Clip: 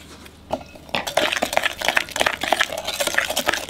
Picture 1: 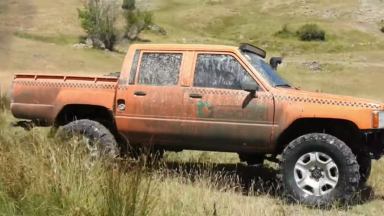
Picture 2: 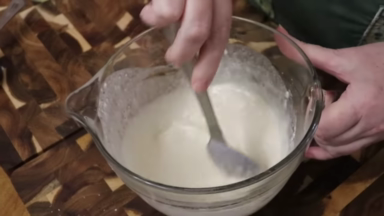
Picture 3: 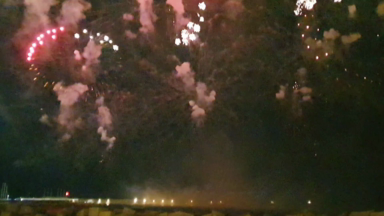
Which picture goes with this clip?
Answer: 2